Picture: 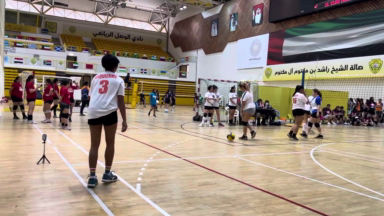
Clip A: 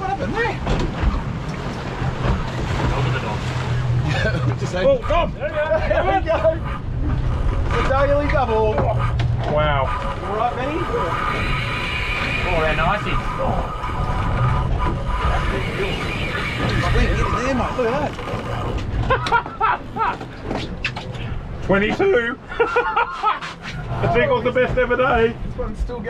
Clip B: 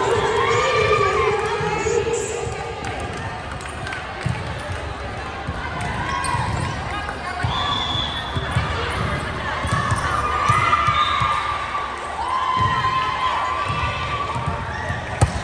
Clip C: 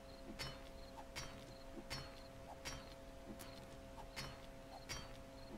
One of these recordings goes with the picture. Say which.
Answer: B